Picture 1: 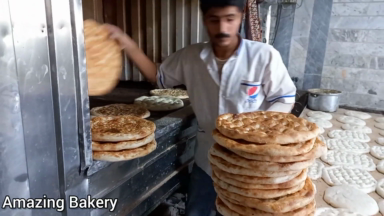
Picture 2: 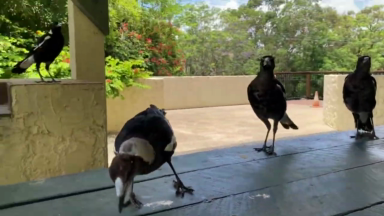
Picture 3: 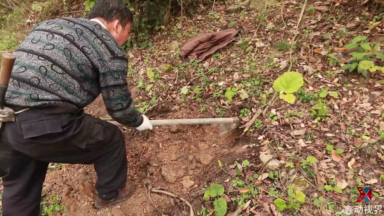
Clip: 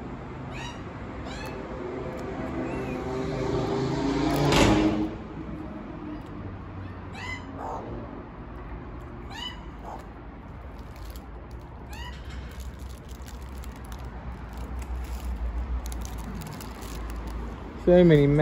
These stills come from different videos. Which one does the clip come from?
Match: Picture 2